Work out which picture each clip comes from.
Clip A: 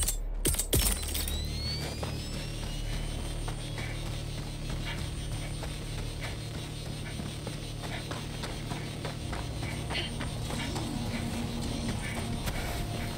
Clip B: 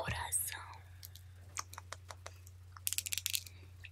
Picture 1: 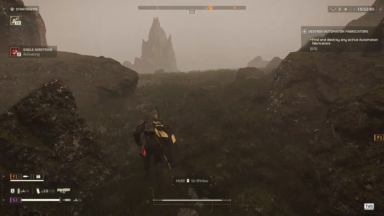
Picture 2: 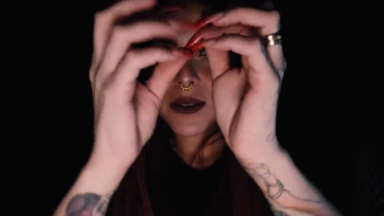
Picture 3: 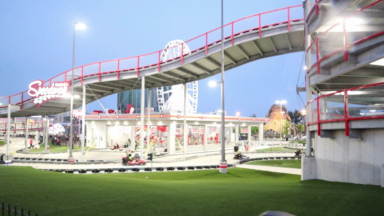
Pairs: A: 1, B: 2